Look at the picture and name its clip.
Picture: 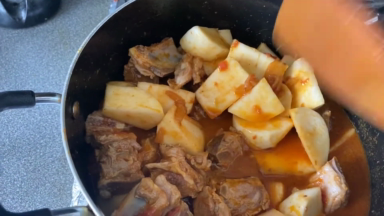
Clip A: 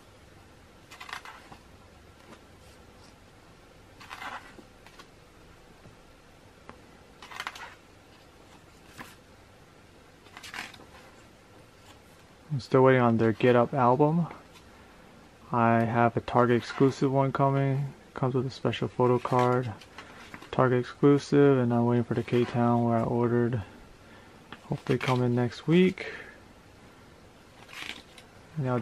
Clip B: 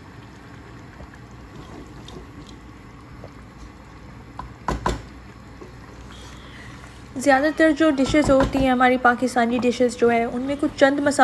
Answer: B